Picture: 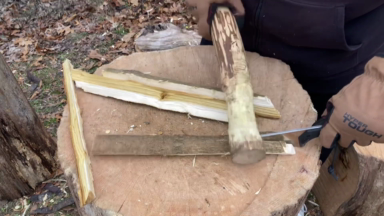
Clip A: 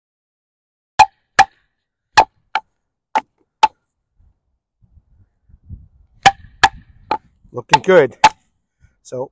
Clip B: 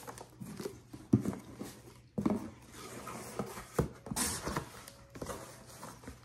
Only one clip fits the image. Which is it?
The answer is A